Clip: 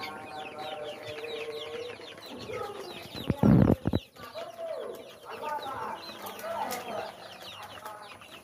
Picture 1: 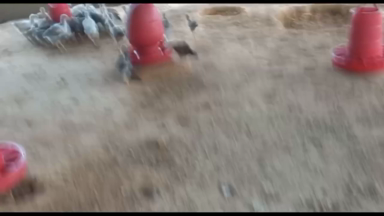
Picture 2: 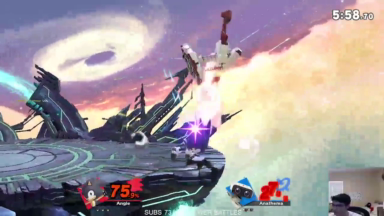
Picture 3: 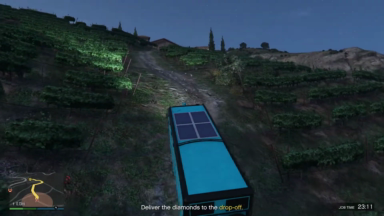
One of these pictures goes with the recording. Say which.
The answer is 1